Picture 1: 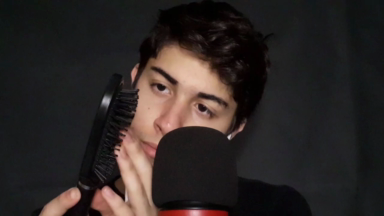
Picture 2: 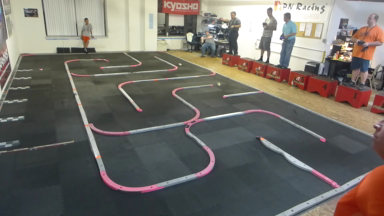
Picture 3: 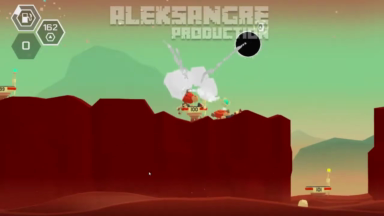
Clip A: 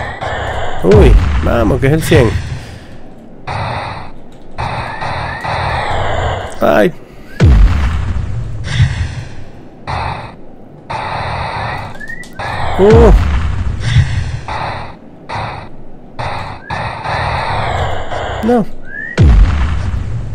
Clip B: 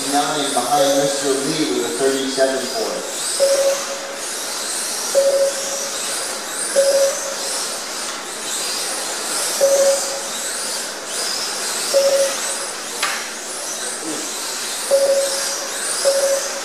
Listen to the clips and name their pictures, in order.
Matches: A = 3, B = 2